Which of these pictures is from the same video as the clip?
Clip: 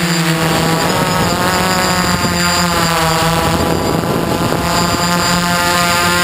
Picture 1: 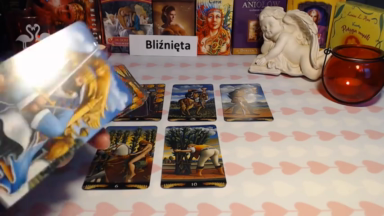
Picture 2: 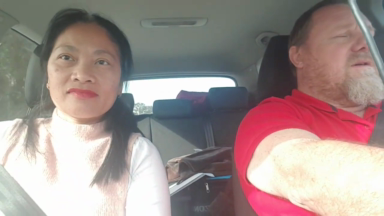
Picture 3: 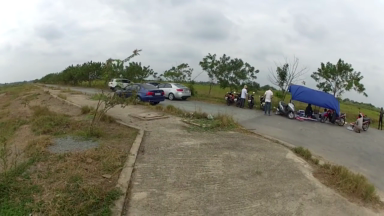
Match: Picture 3